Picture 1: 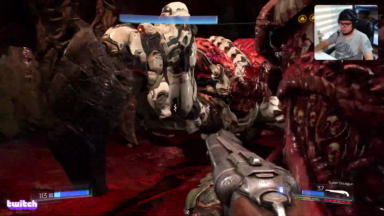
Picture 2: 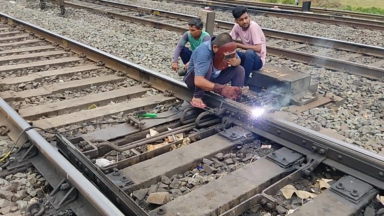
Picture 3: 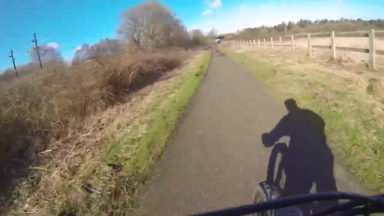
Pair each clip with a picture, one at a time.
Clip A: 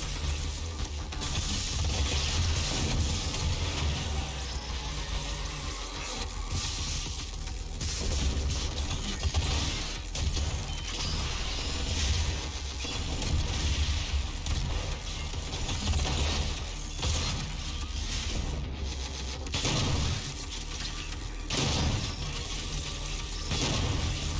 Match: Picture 1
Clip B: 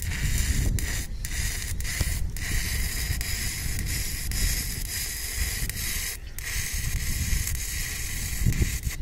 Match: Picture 2